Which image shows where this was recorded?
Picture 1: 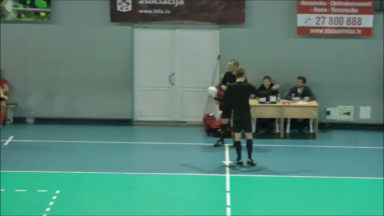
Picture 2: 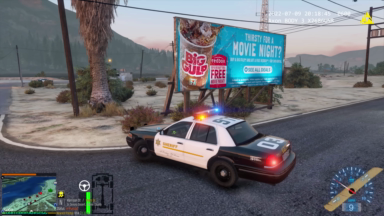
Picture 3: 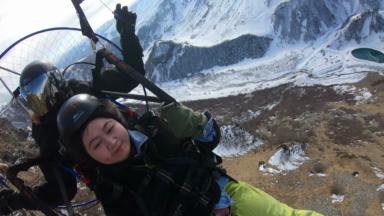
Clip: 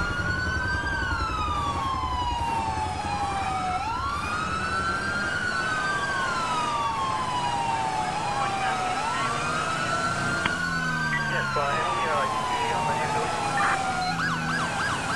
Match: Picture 2